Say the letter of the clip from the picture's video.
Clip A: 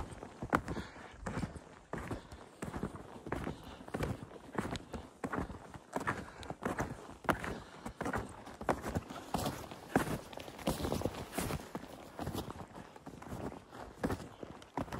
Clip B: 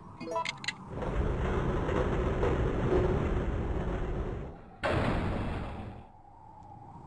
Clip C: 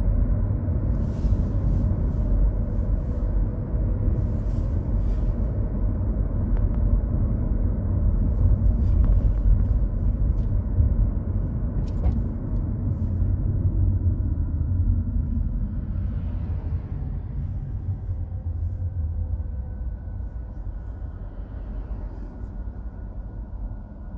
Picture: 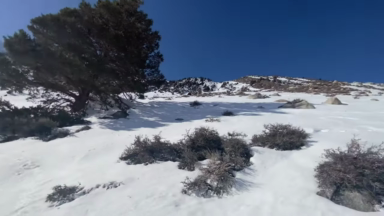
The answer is A